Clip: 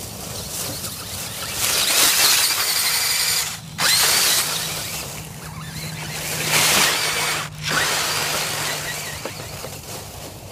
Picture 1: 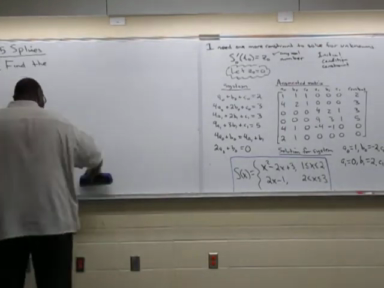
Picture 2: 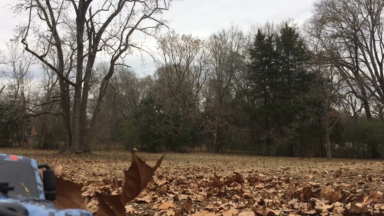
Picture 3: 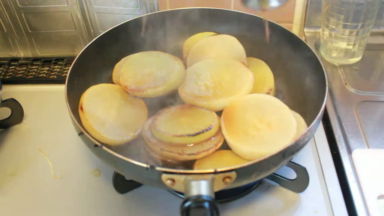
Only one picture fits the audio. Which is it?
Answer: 2